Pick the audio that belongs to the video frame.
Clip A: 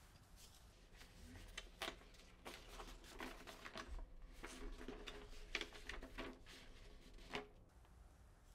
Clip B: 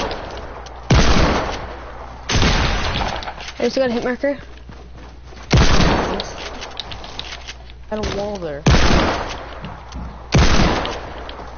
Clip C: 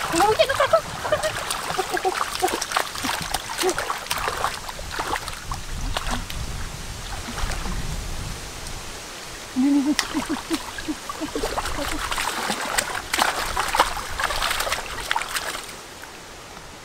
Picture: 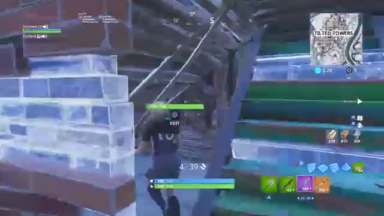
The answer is B